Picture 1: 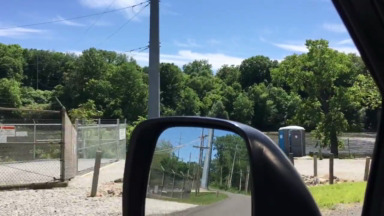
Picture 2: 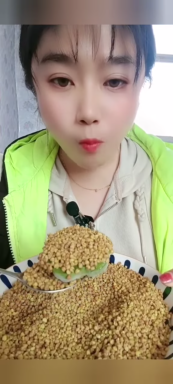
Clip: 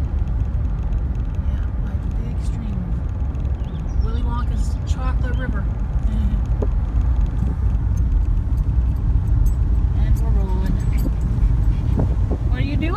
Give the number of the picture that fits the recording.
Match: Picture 1